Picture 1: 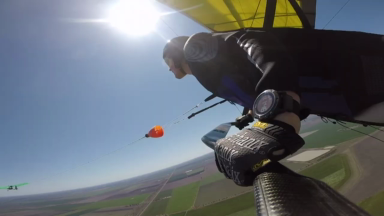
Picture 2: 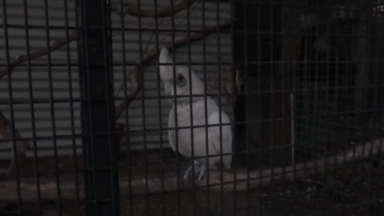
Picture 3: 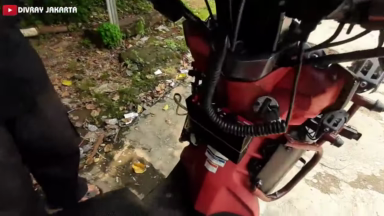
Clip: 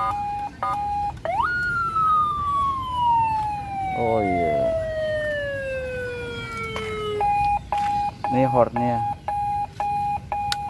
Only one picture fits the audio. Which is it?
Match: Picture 3